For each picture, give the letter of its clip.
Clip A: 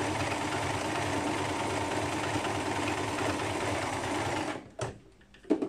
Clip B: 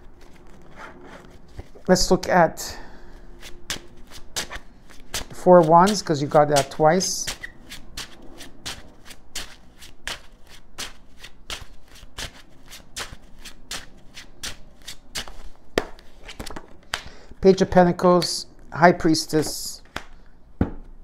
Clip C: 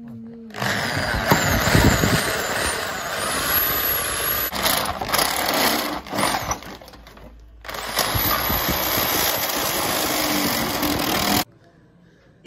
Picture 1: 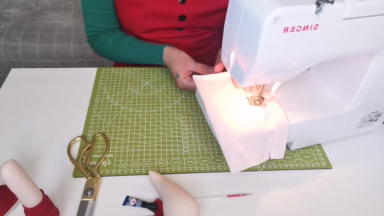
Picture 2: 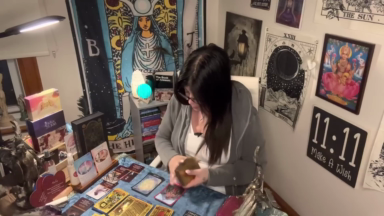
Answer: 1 A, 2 B